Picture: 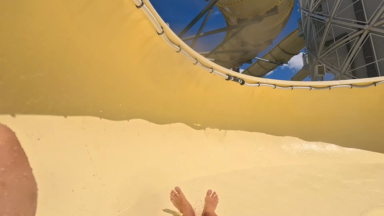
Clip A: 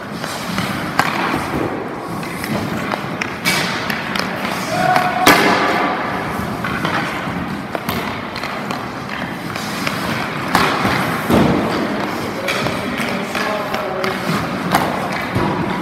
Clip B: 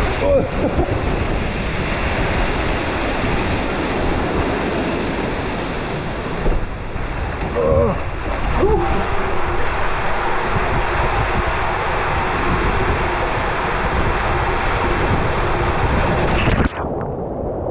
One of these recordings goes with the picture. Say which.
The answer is B